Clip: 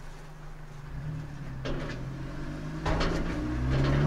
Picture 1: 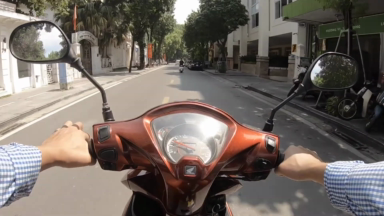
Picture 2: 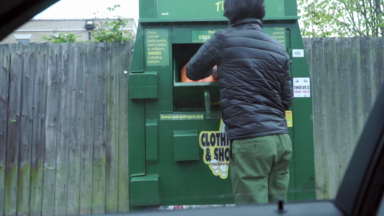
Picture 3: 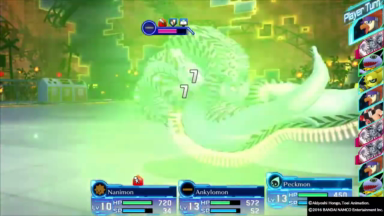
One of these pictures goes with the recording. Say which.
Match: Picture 2